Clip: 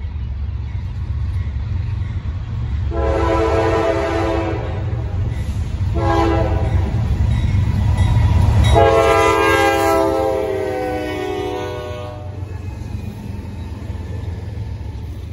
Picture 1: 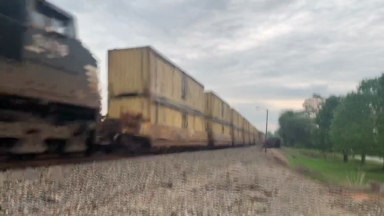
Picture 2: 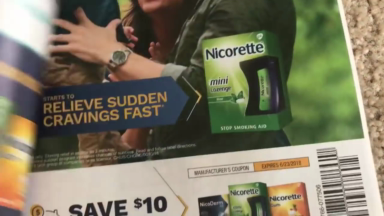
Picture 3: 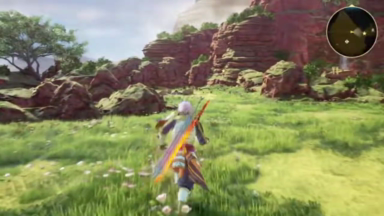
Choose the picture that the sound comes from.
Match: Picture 1